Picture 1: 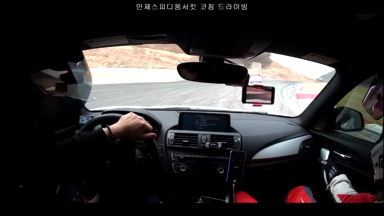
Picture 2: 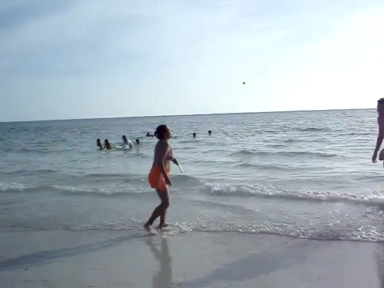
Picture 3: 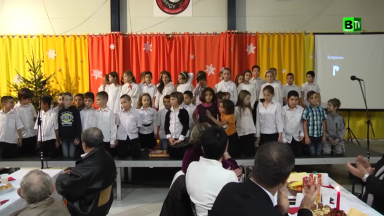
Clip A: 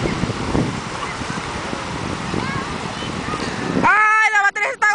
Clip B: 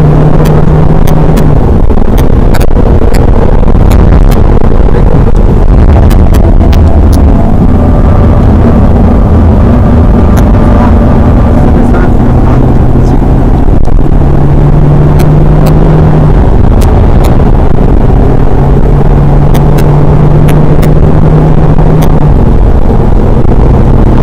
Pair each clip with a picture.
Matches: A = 2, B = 1